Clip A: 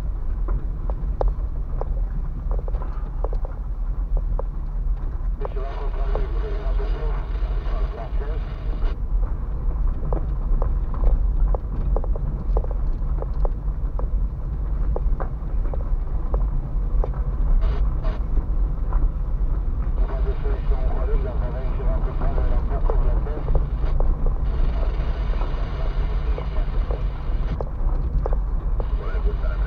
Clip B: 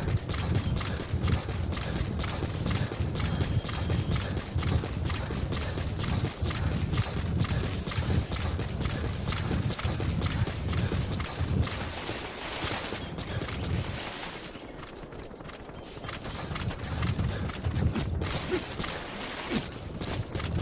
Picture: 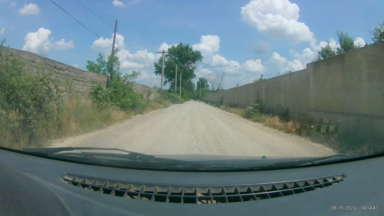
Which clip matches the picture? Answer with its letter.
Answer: A